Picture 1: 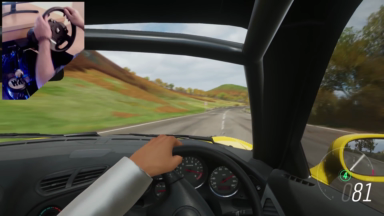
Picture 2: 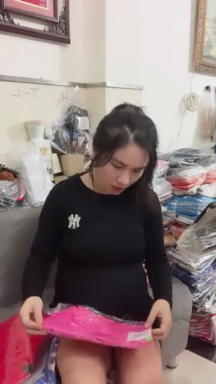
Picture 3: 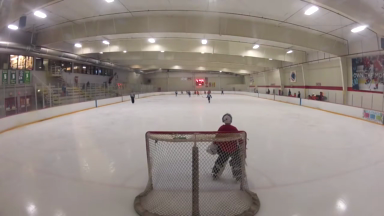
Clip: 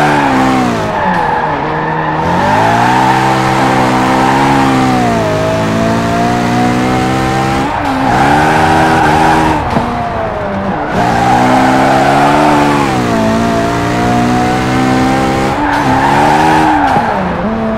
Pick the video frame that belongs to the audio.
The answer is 1